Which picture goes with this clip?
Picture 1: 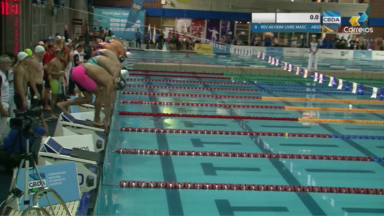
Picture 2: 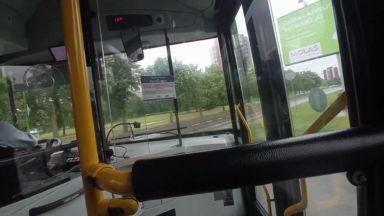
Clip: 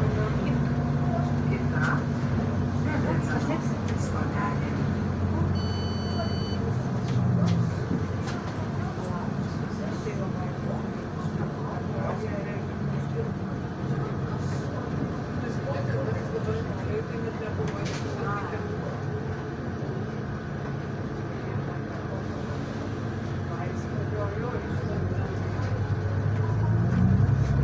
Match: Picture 2